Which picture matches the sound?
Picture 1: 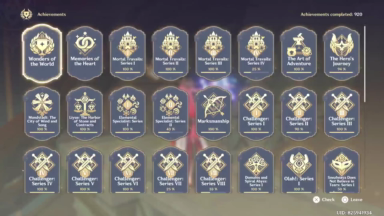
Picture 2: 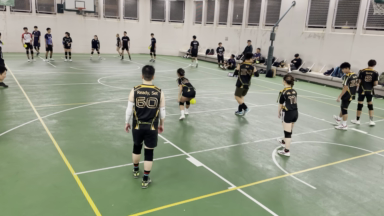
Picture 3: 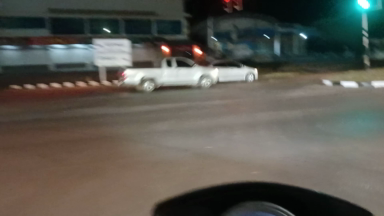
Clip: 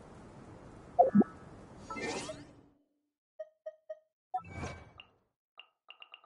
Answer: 1